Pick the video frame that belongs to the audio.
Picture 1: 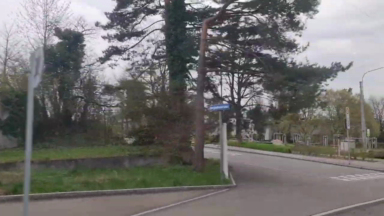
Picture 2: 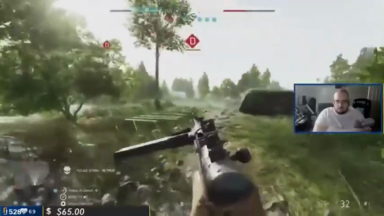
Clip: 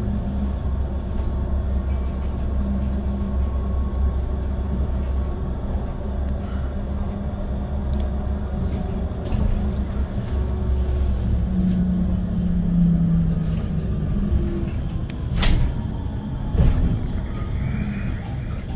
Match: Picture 1